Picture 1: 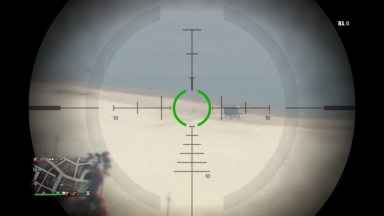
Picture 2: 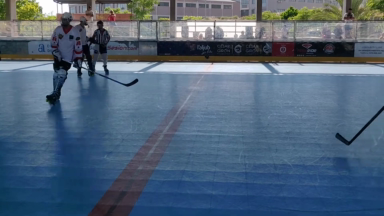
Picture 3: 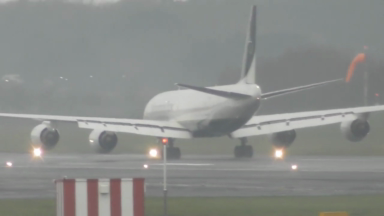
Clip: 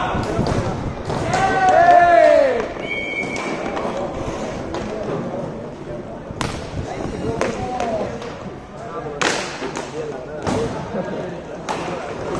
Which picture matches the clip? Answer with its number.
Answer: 2